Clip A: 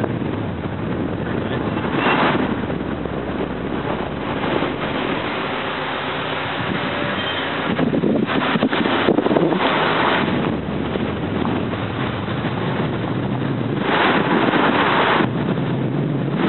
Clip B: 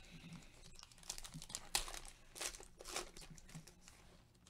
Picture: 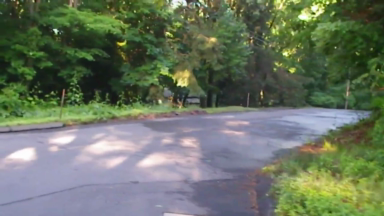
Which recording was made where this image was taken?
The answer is A